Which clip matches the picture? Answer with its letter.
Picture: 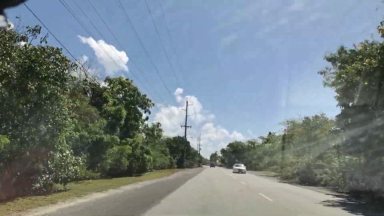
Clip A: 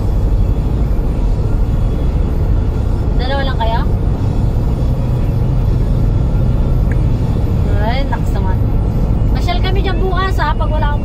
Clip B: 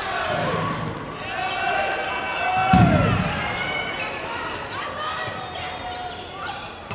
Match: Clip A